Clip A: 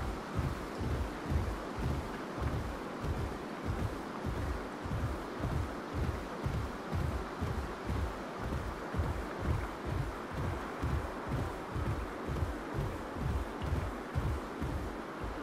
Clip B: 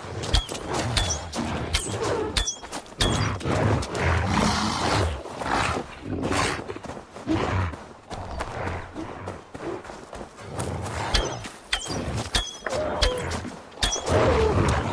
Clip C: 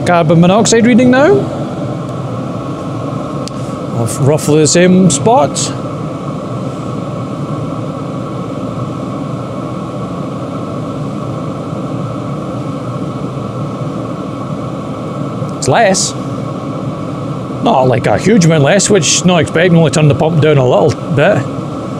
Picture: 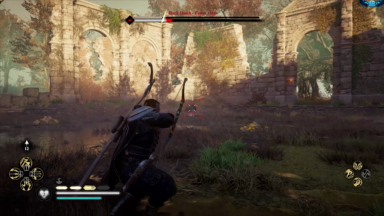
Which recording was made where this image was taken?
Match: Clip B